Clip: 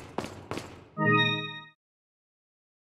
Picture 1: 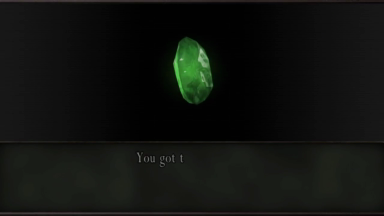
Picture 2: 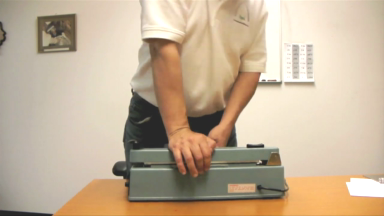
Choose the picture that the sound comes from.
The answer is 1